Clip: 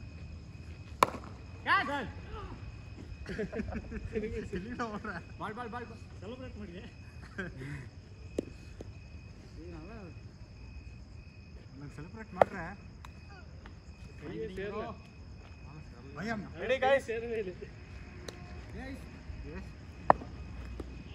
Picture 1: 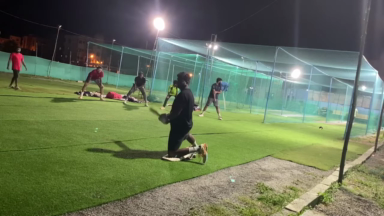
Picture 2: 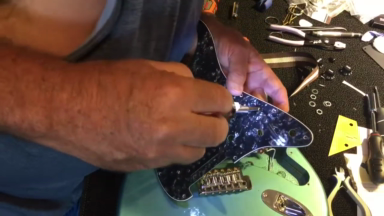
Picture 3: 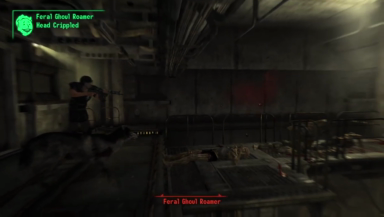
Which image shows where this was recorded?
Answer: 1